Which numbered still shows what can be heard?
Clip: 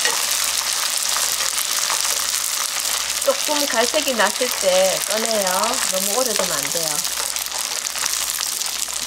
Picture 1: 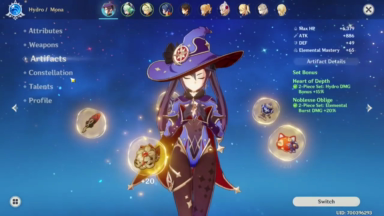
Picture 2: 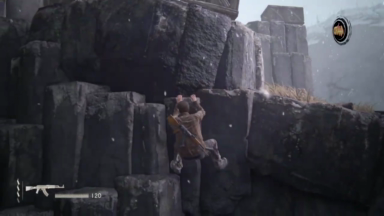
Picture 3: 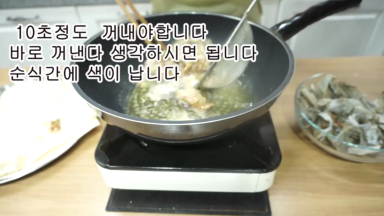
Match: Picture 3